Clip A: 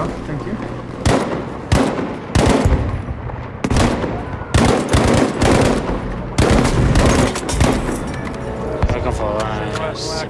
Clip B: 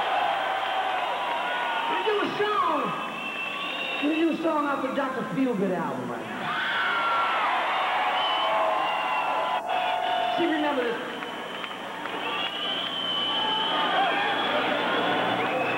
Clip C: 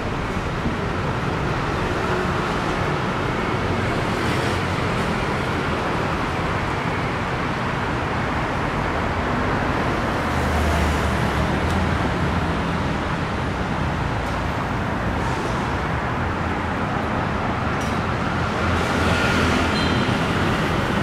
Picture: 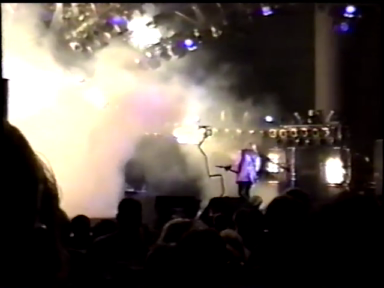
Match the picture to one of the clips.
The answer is B